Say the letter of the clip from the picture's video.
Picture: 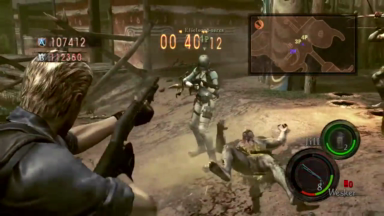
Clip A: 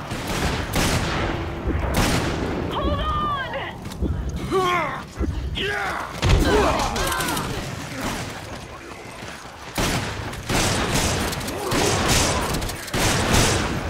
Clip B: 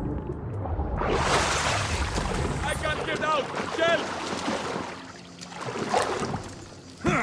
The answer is A